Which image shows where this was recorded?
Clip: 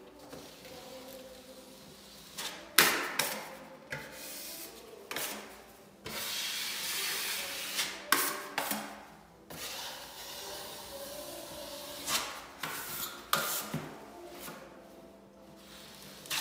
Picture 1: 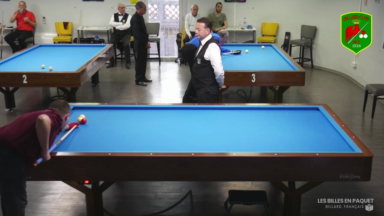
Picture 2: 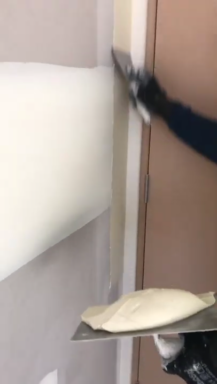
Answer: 2